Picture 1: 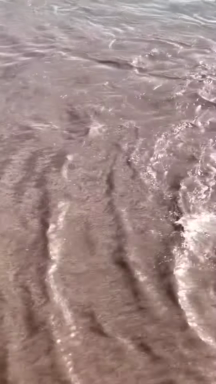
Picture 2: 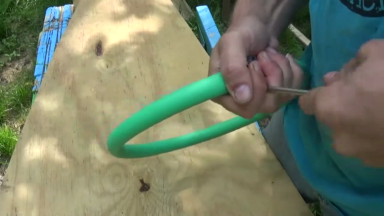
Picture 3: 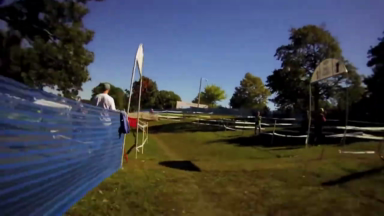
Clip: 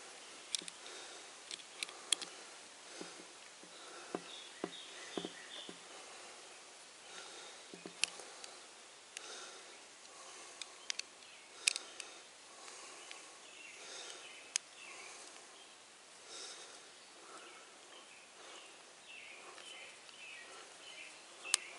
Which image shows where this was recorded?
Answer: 2